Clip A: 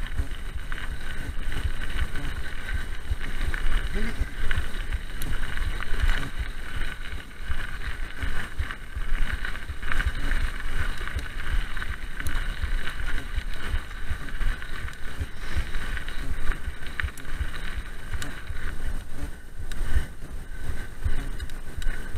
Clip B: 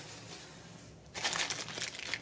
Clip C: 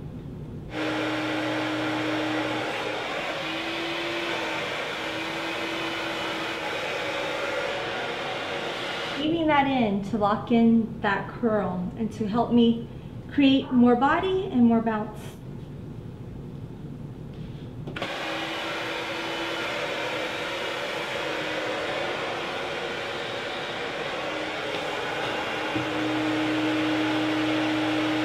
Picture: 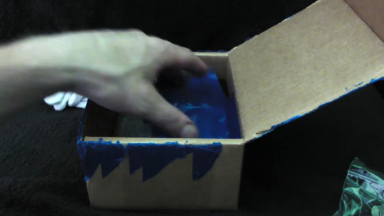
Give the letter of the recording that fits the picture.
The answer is B